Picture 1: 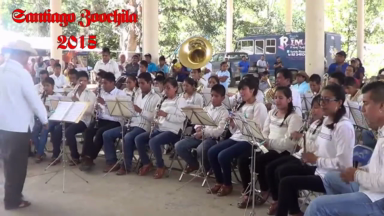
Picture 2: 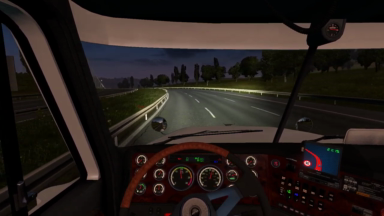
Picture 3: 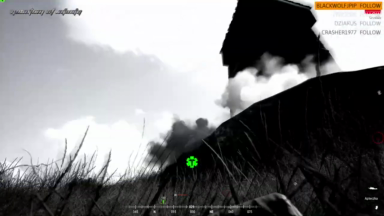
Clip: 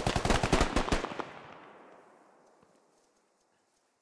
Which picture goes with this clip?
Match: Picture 3